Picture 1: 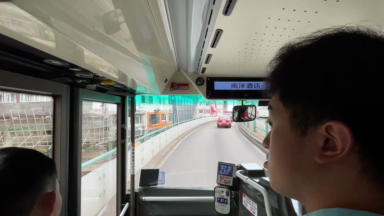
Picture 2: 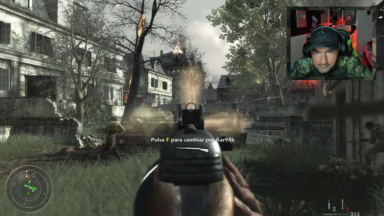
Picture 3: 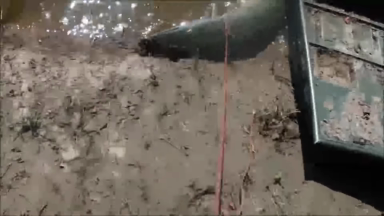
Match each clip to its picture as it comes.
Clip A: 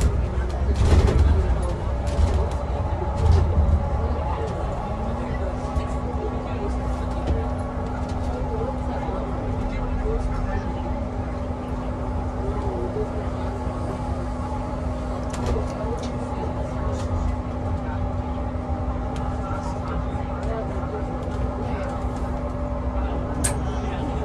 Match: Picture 1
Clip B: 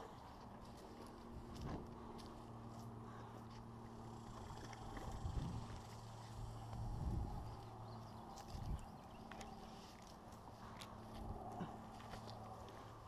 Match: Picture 3